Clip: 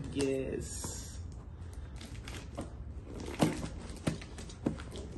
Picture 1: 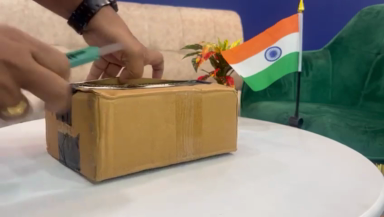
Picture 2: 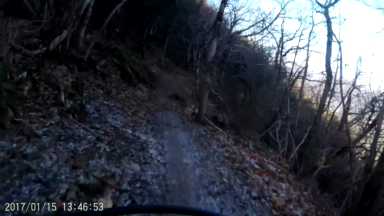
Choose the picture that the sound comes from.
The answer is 1